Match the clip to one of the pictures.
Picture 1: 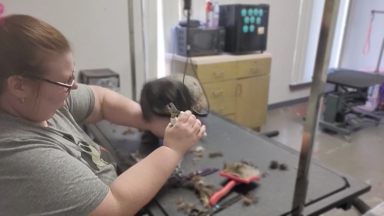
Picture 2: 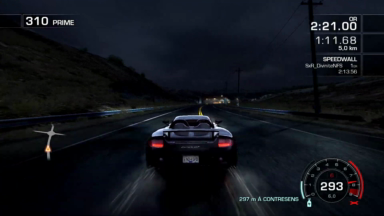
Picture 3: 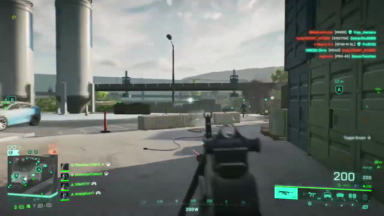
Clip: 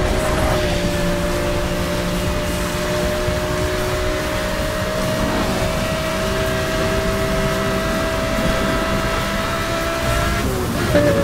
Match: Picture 2